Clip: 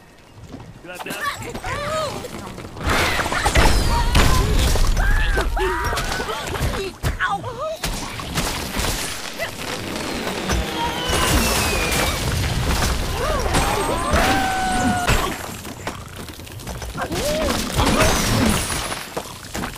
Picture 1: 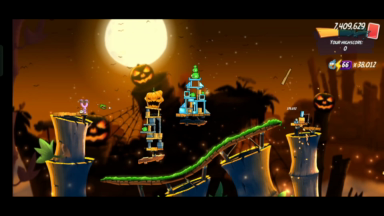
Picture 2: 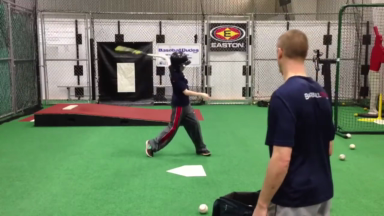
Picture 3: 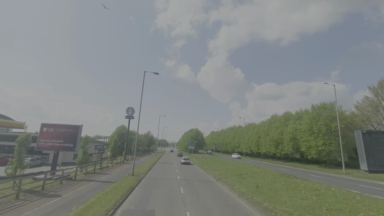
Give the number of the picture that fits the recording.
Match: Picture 1